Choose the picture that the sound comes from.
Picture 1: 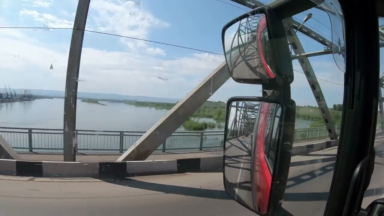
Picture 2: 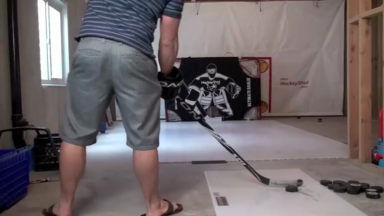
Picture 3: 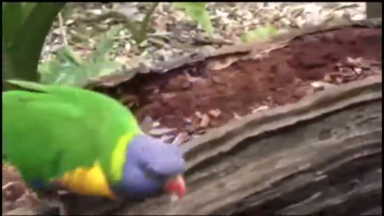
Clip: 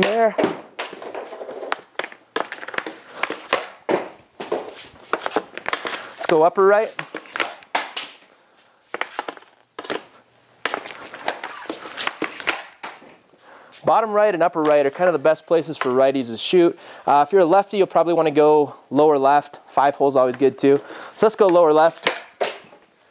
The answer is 2